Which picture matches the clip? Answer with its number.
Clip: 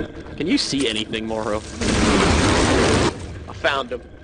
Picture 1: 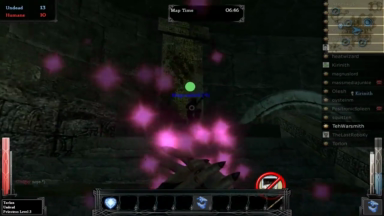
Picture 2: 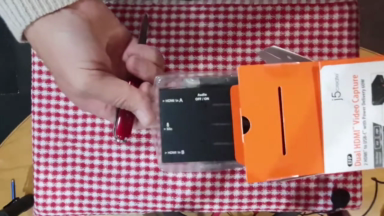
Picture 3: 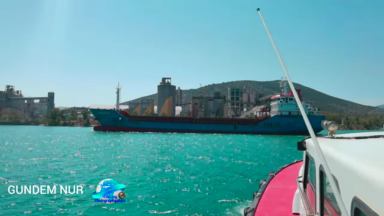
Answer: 1